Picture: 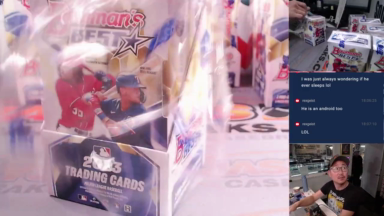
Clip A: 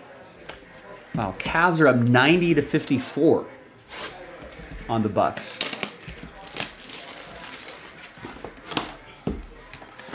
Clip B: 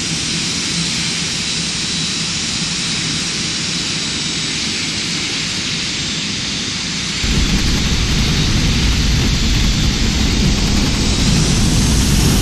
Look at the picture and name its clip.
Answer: A